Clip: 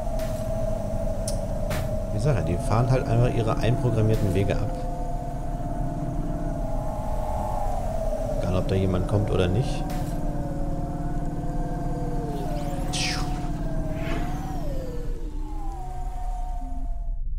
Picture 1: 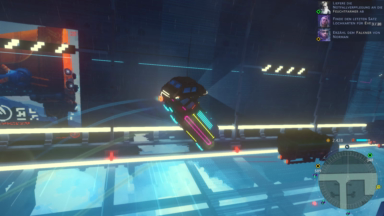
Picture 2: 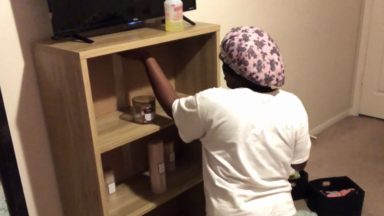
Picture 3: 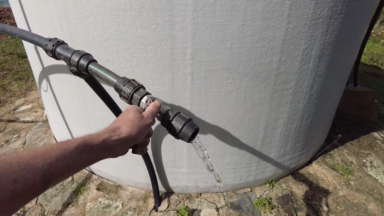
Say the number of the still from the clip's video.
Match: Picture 1